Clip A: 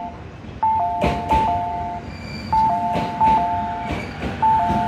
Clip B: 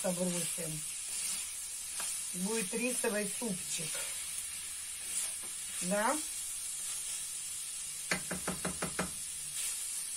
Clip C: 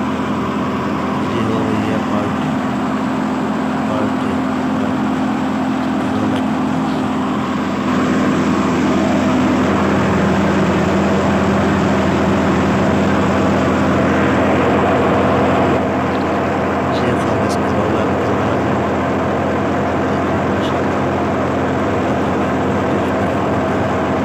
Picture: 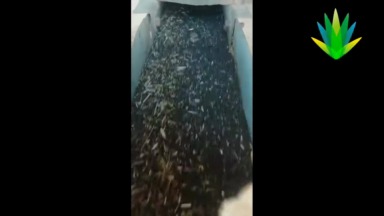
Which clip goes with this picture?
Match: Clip C